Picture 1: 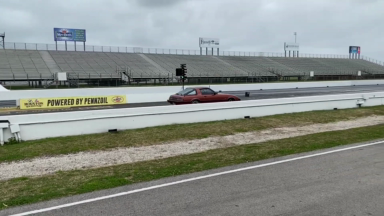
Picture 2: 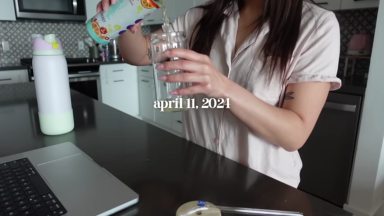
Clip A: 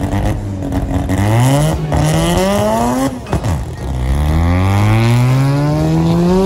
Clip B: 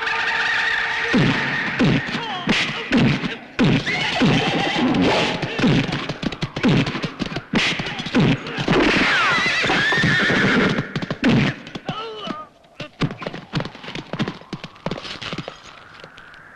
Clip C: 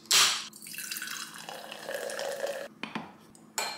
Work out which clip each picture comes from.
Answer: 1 A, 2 C